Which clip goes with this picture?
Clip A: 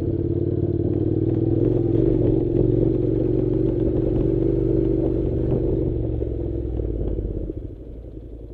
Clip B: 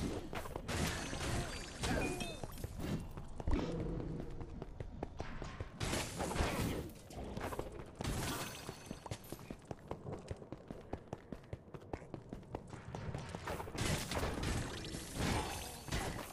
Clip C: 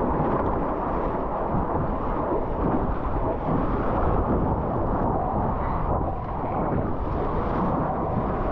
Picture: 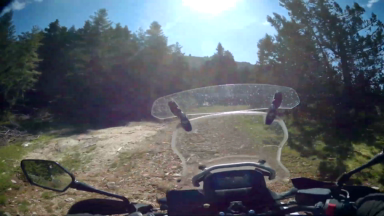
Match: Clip A